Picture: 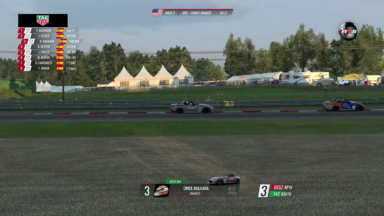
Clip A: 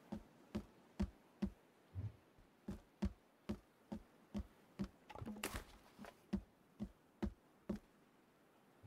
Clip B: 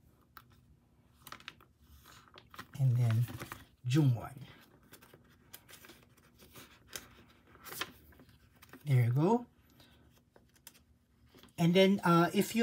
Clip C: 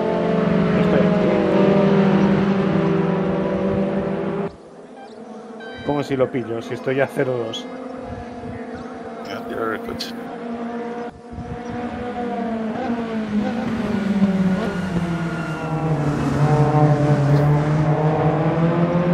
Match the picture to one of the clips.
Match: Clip C